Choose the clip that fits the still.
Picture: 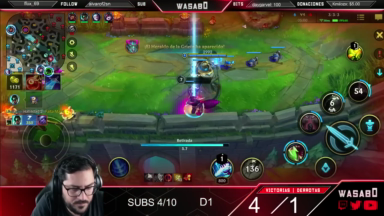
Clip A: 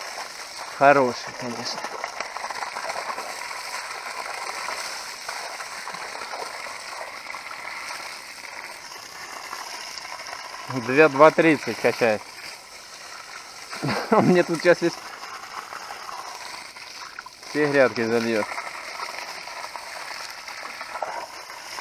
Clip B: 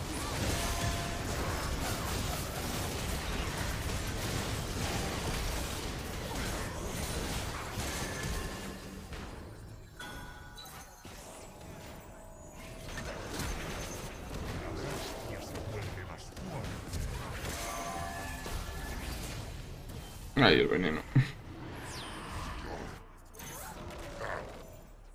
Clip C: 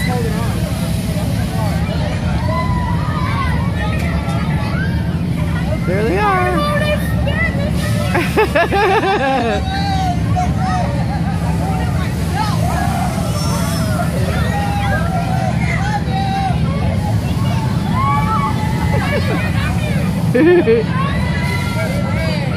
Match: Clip B